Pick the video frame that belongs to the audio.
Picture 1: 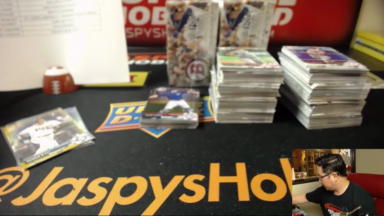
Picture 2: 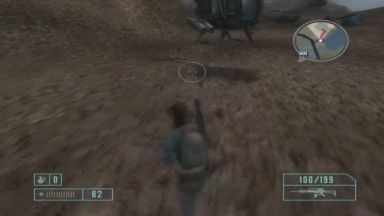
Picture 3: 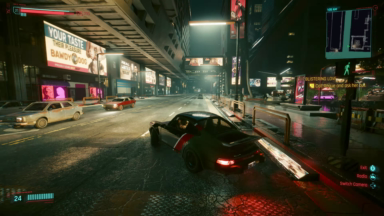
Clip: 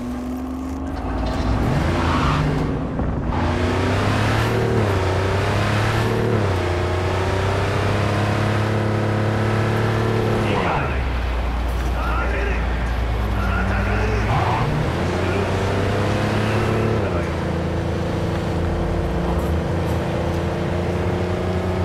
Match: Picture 3